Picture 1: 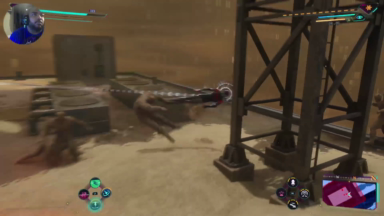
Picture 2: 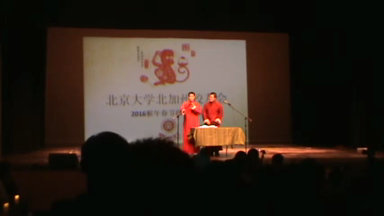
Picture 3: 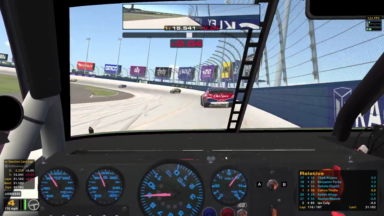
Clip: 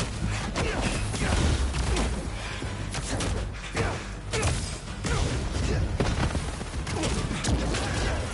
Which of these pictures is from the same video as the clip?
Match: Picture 1